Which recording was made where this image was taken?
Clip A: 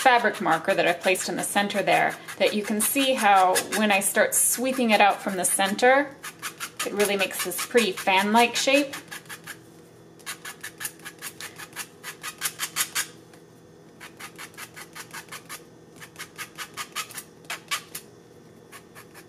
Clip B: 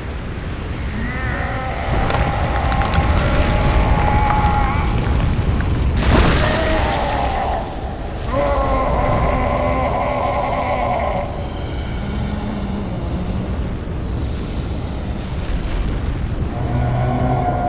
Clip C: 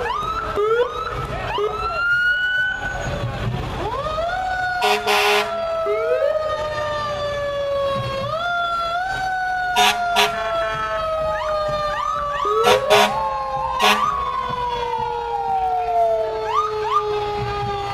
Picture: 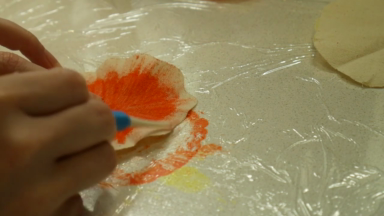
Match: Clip A